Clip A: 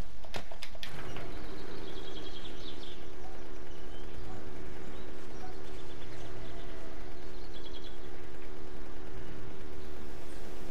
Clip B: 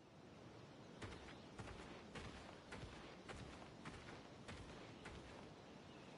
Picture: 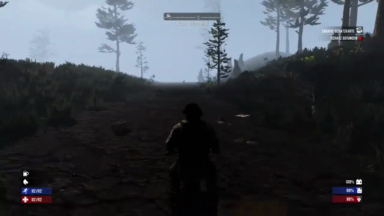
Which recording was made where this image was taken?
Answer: A